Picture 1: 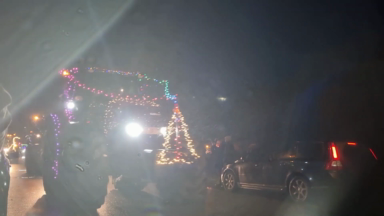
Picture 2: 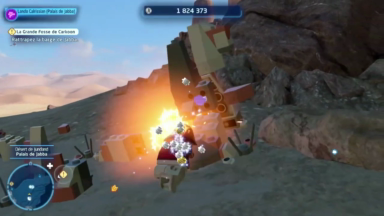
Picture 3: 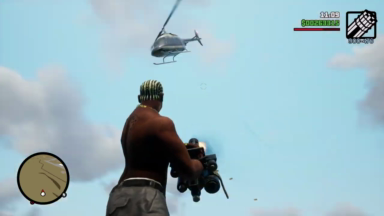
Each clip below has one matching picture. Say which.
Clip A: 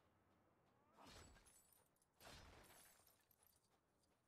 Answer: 2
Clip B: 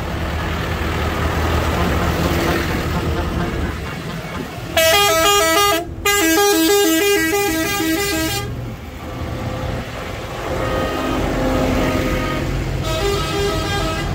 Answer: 1